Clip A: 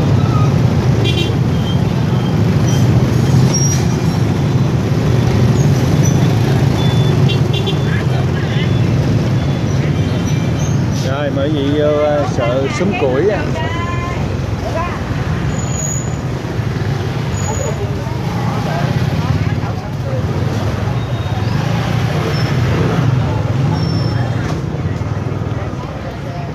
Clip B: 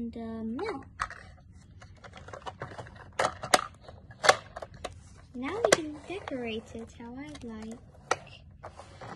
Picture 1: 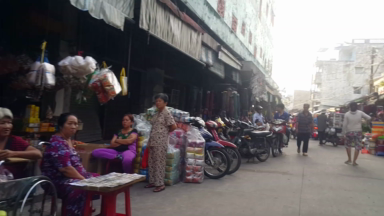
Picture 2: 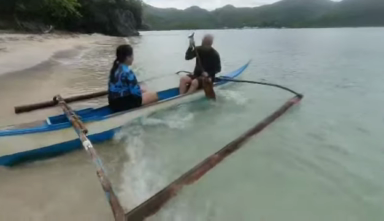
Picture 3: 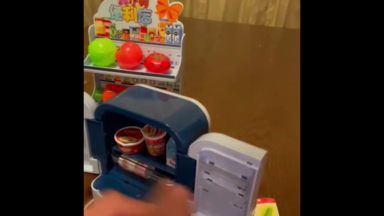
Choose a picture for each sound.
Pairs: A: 1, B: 3